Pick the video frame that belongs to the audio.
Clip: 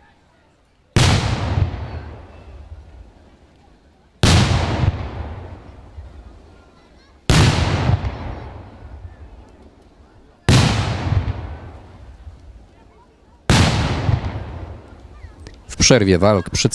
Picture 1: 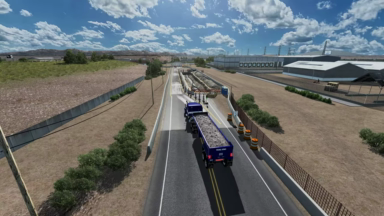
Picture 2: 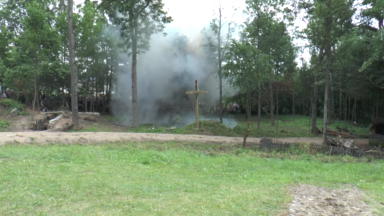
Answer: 2